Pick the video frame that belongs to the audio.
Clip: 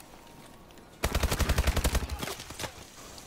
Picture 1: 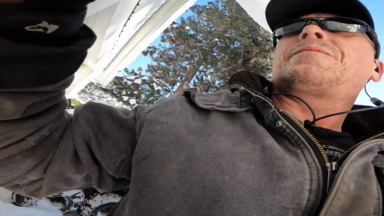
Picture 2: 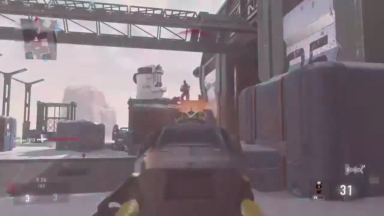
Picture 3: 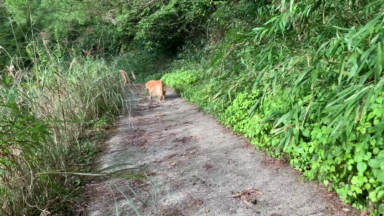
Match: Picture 2